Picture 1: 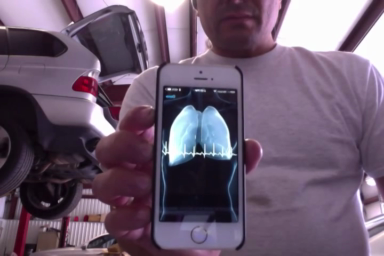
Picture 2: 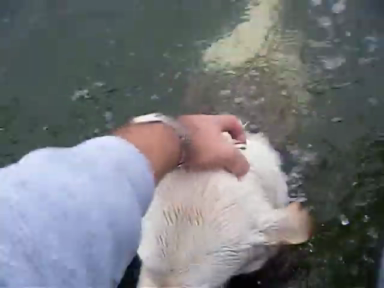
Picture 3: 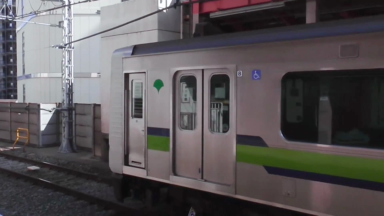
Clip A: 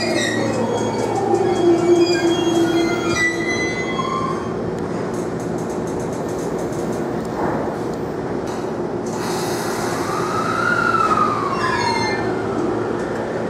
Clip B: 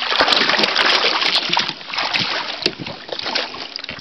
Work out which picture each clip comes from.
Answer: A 3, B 2